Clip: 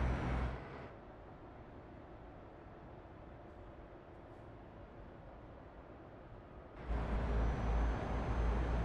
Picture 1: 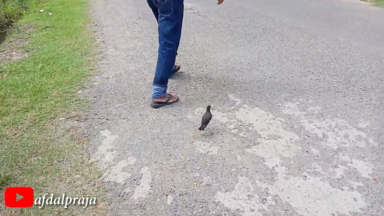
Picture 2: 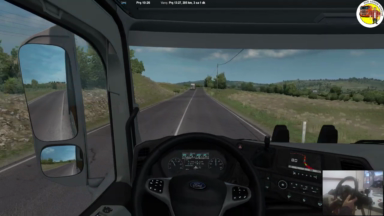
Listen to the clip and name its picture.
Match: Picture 2